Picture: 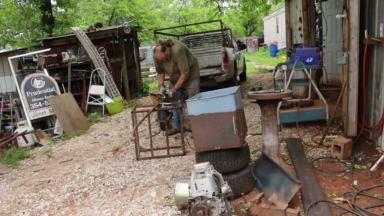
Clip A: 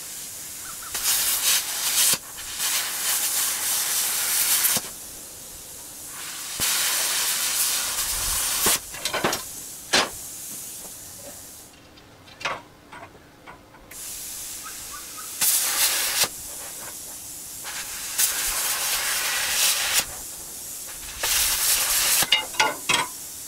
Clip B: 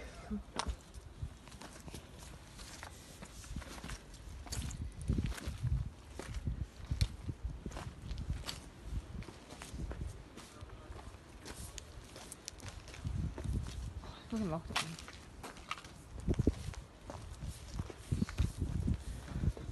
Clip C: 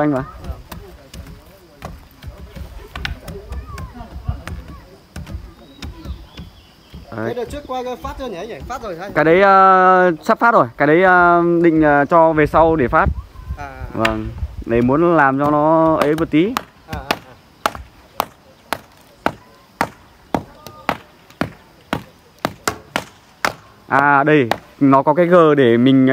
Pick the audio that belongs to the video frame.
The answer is A